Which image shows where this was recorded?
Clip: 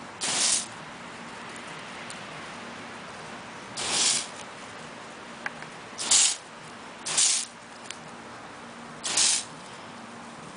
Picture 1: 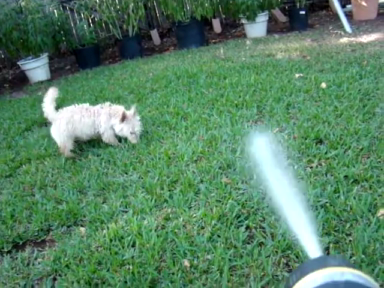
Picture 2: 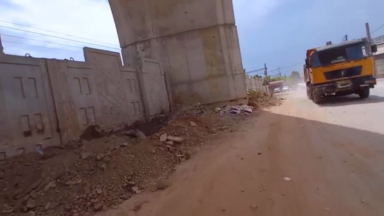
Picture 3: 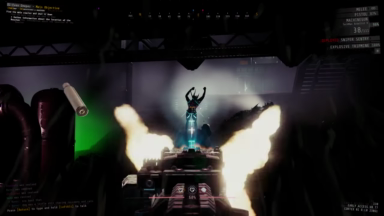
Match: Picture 1